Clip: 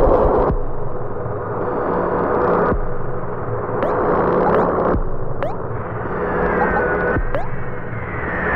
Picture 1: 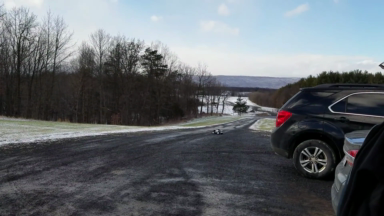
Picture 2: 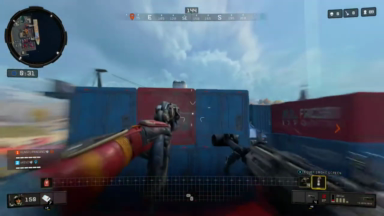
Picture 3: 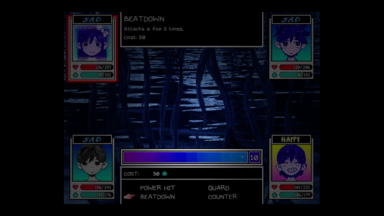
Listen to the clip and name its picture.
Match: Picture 3